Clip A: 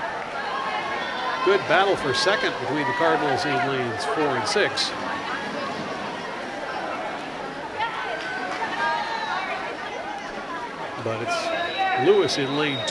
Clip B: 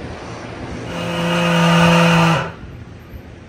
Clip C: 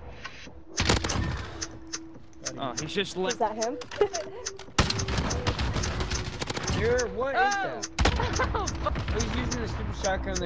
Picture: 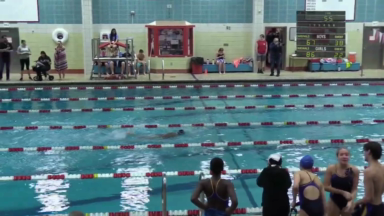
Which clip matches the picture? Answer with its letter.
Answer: A